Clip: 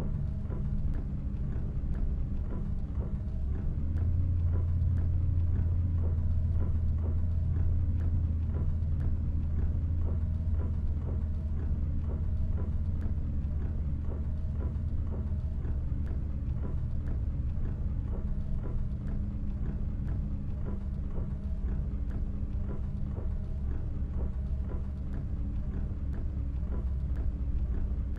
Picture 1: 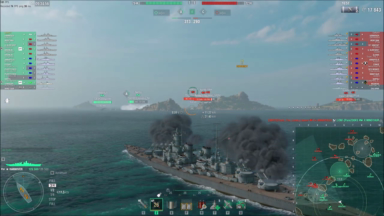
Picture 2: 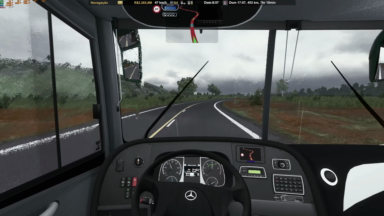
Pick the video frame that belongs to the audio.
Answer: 2